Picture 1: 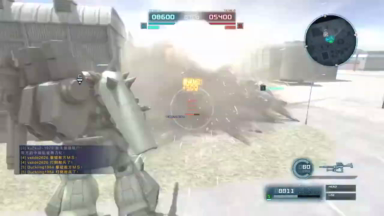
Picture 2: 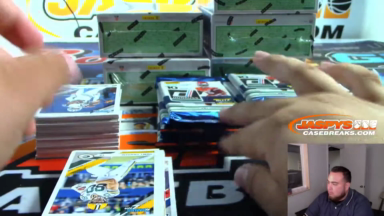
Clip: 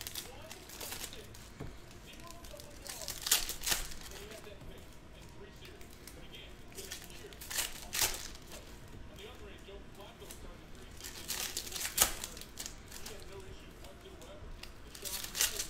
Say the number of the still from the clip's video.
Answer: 2